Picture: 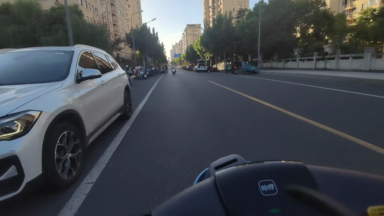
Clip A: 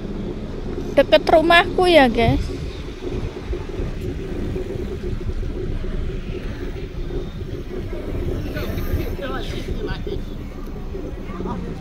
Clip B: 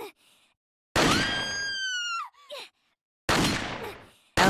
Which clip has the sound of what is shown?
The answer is A